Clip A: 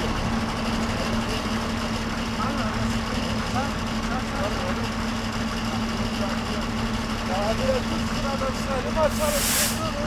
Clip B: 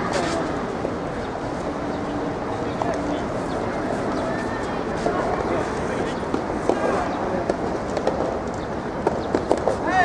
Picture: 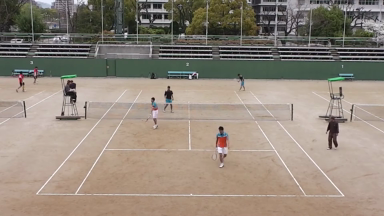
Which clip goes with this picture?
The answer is B